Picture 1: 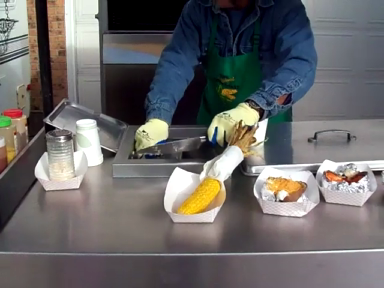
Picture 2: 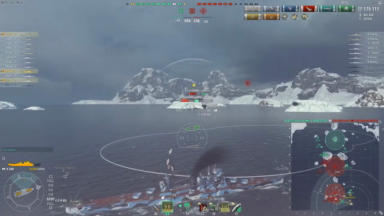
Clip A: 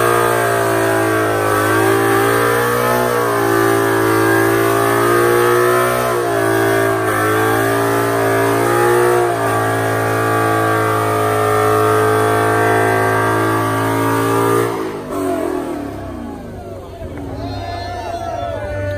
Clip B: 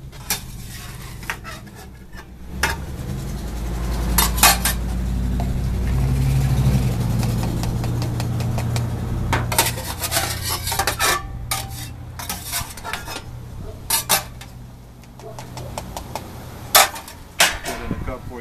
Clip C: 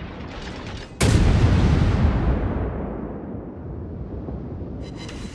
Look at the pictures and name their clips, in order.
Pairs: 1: B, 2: C